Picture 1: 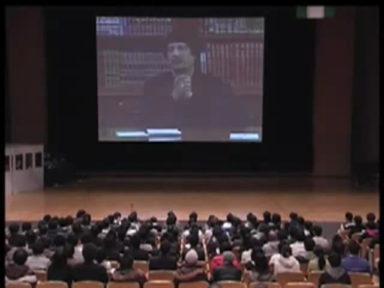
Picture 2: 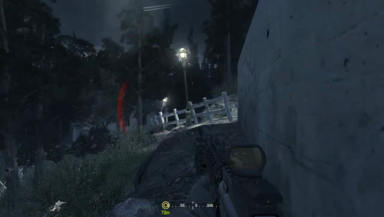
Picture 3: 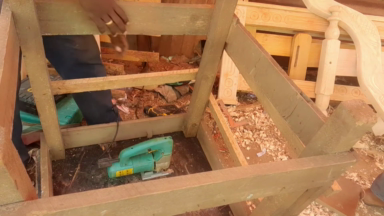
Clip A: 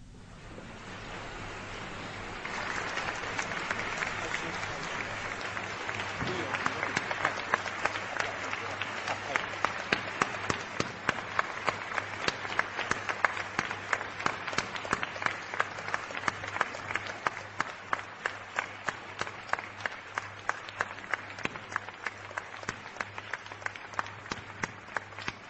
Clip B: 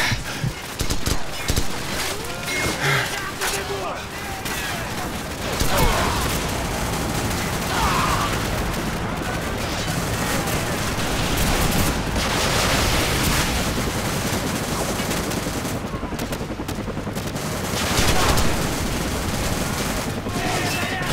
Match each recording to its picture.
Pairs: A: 1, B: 2